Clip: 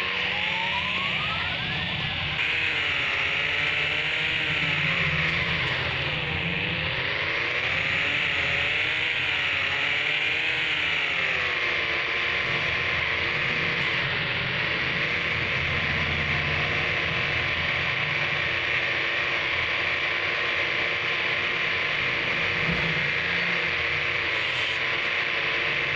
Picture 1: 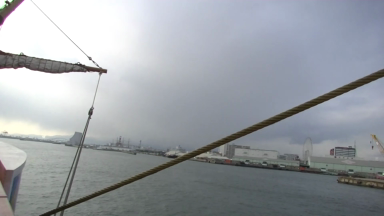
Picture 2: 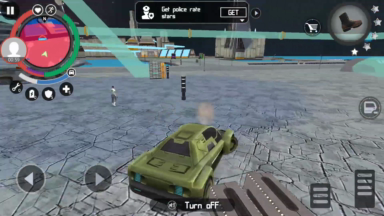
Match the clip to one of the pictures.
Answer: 2